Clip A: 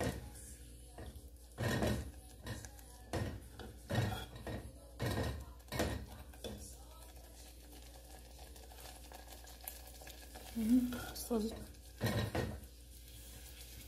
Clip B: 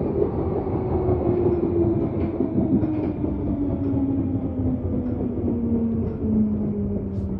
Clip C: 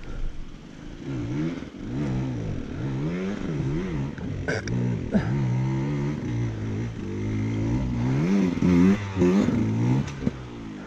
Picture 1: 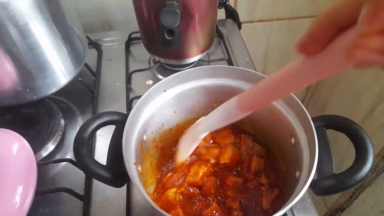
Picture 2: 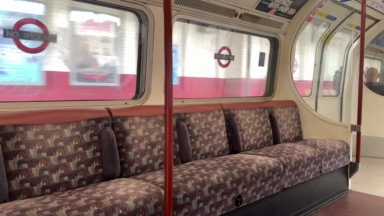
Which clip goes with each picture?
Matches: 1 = A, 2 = B